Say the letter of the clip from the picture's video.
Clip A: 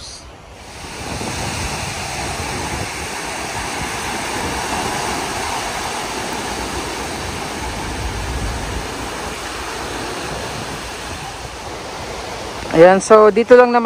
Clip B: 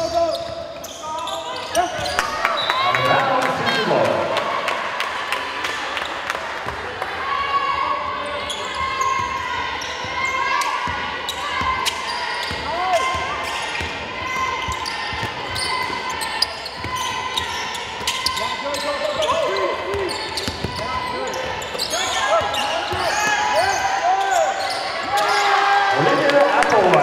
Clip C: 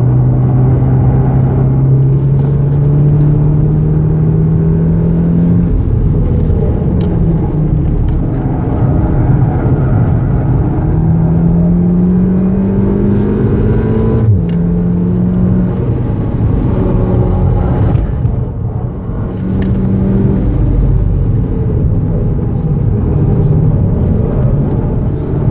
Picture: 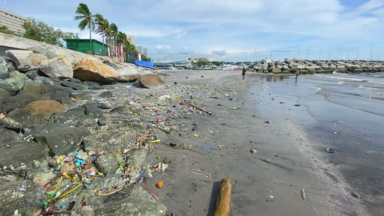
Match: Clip A